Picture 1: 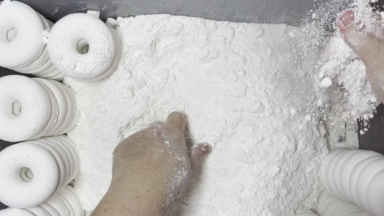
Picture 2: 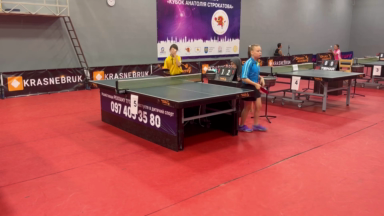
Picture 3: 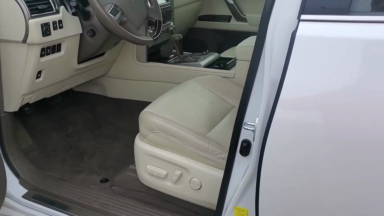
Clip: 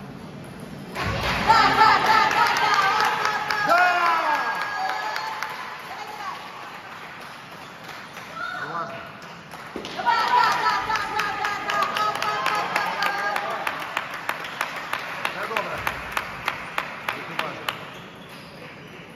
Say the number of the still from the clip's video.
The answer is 2